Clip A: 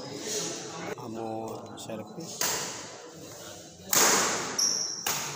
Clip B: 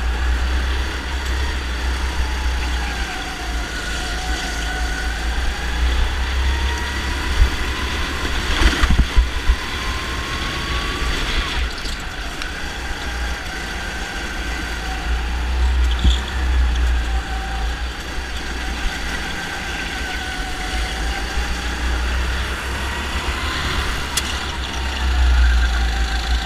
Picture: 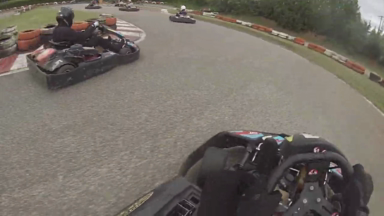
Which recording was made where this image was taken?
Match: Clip B